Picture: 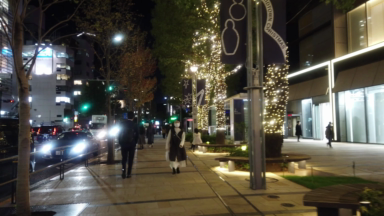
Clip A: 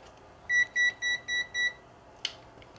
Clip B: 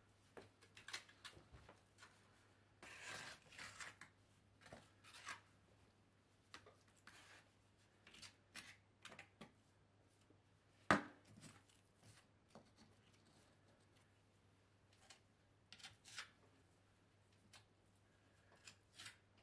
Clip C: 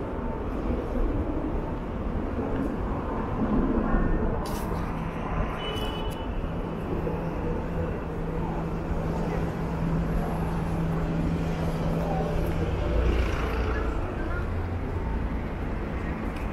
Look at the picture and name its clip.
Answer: C